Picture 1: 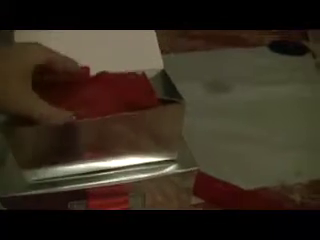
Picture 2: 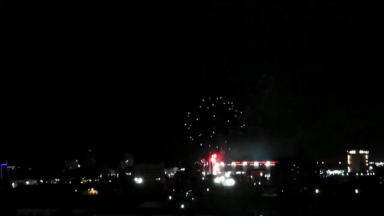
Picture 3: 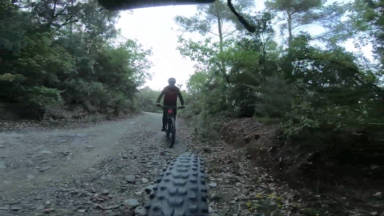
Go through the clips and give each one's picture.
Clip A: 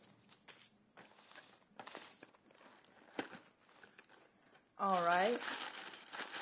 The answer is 1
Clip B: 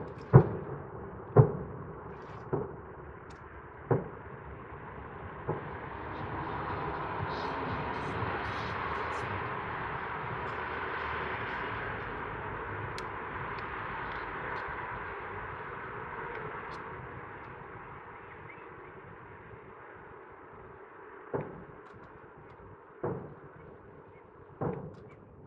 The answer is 2